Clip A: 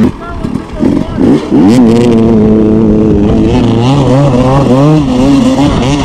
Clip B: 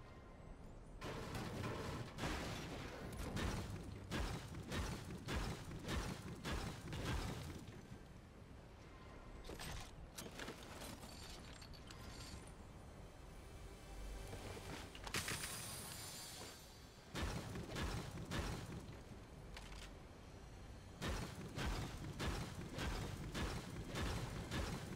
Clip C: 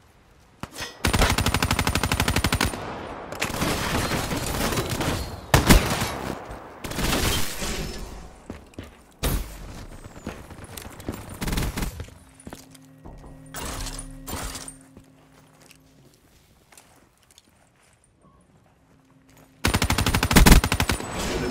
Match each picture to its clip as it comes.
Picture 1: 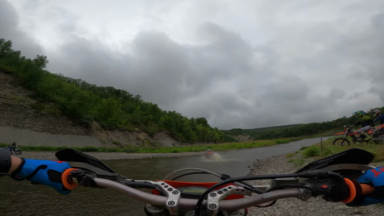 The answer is A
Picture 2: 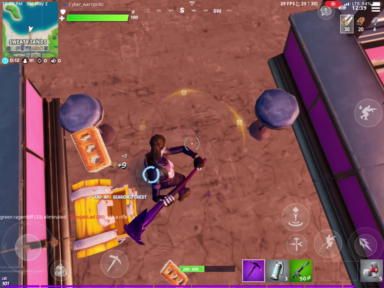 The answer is B